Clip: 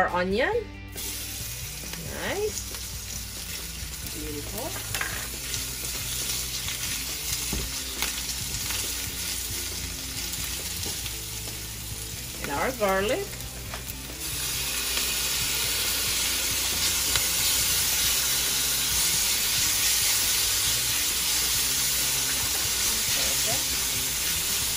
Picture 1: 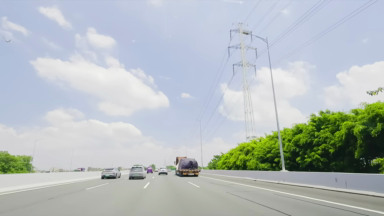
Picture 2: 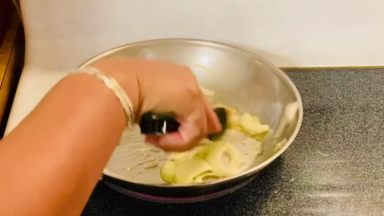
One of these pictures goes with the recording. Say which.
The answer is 2